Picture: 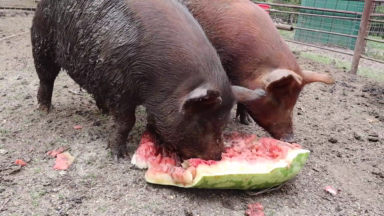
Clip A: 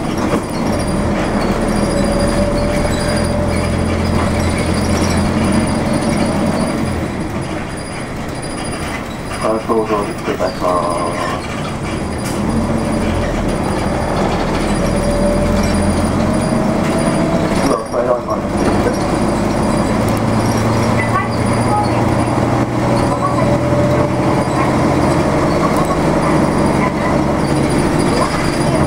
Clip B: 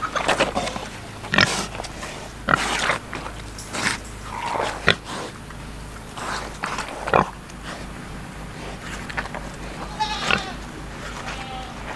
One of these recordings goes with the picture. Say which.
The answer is B